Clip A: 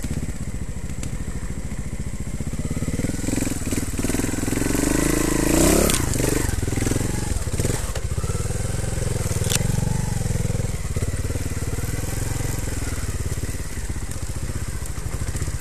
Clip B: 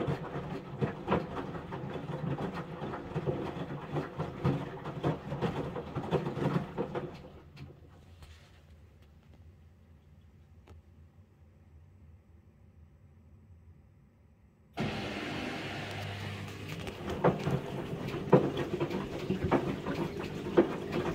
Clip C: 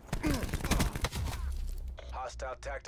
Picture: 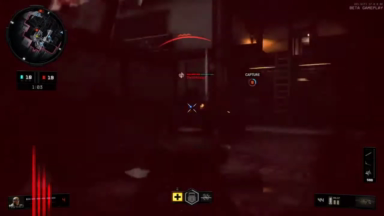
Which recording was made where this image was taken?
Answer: C